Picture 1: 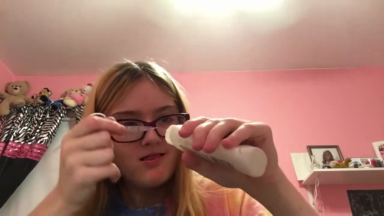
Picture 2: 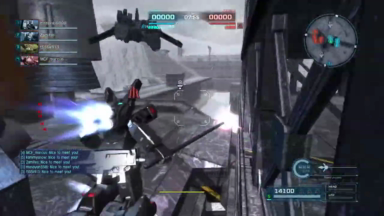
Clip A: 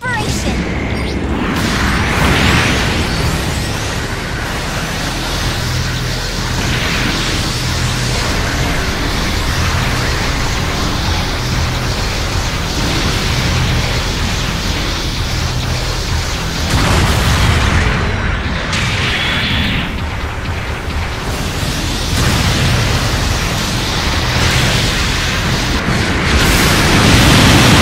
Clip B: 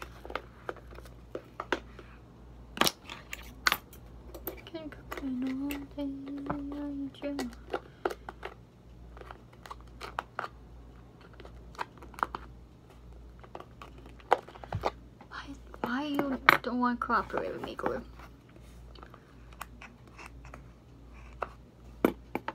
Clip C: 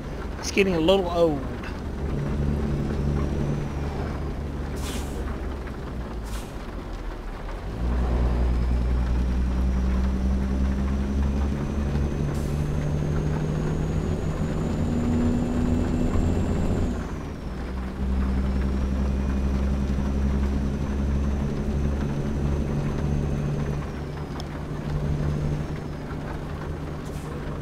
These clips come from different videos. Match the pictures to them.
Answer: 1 B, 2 A